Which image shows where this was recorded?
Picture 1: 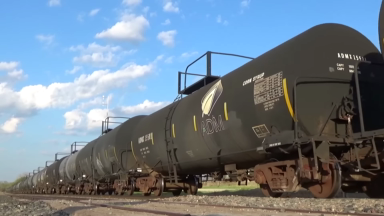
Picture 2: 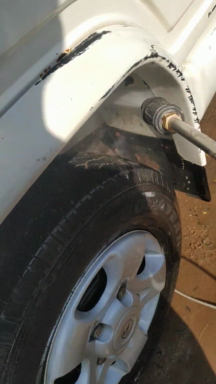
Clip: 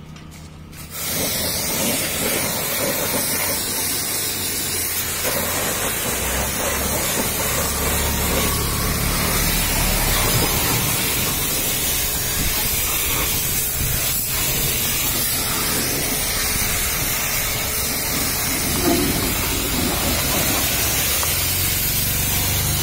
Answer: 2